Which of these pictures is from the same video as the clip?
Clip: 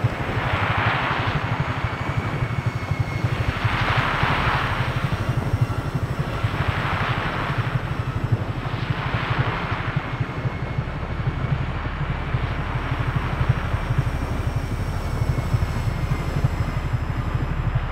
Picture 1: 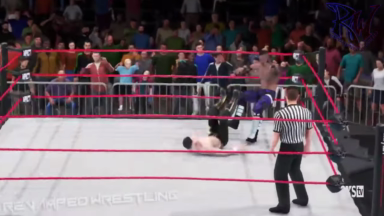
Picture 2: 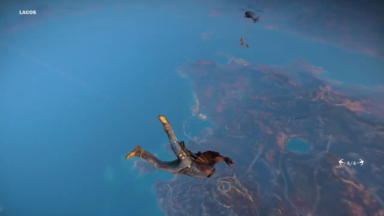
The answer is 2